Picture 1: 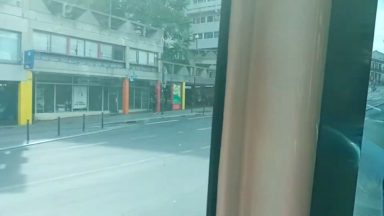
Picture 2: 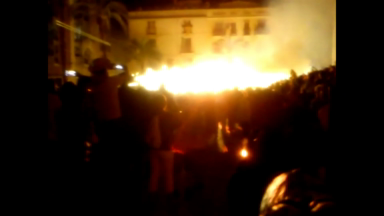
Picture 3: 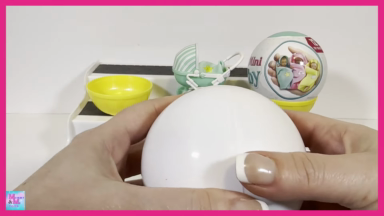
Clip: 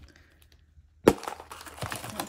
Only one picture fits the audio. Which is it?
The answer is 3